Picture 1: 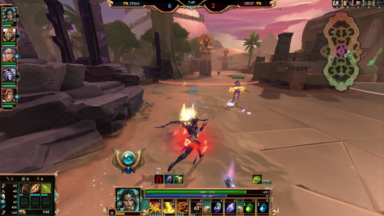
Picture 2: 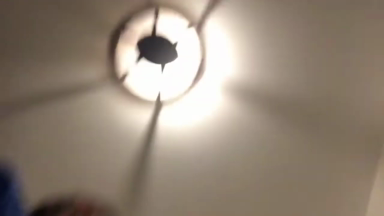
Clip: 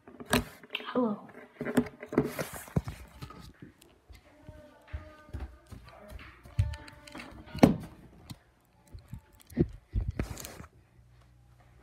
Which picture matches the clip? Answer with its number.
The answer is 2